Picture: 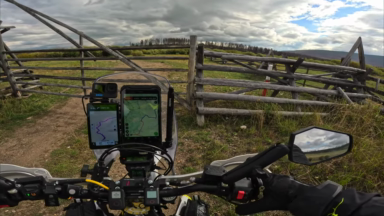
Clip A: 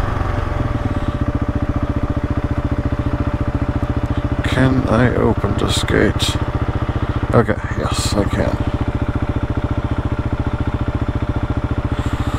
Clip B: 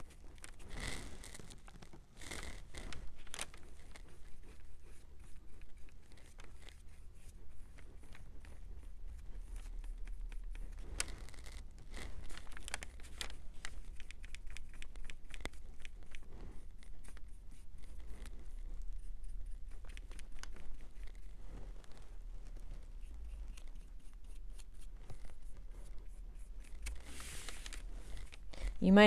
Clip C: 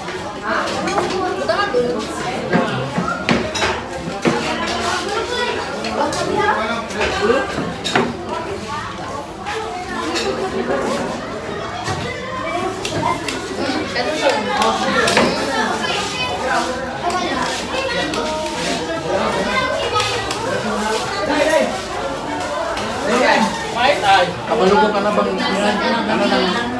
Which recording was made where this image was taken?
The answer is A